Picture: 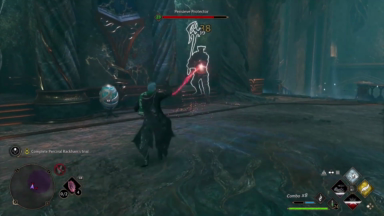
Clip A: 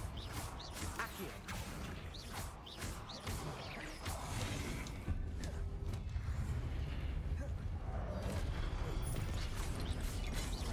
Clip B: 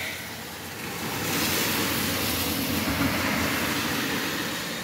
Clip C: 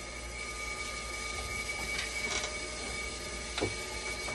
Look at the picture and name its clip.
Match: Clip A